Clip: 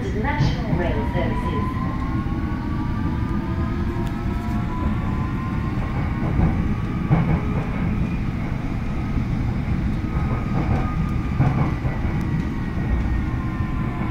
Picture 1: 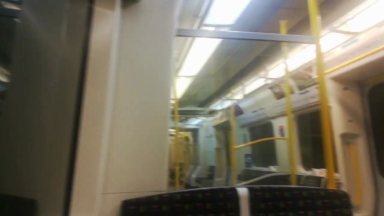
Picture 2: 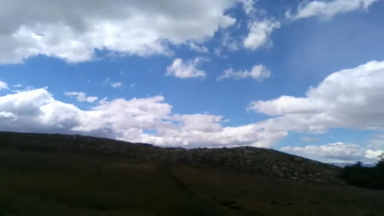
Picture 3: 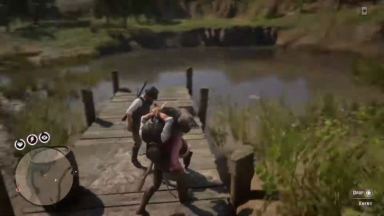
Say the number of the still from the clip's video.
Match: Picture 1